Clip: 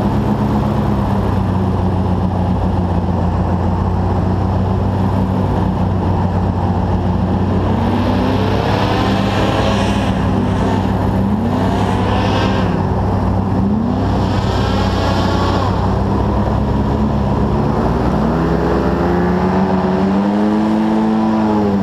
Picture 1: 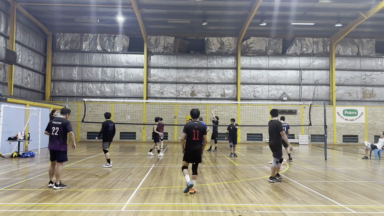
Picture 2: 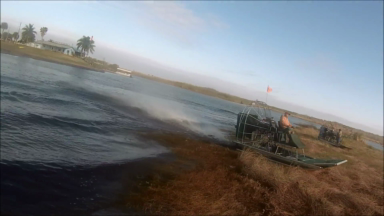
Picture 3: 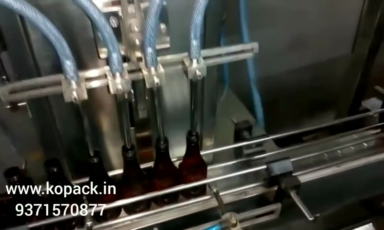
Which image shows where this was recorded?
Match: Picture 2